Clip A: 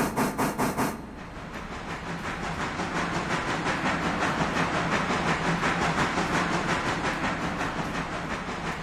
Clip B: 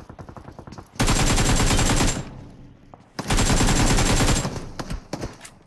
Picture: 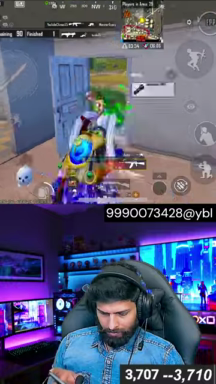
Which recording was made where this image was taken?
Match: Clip B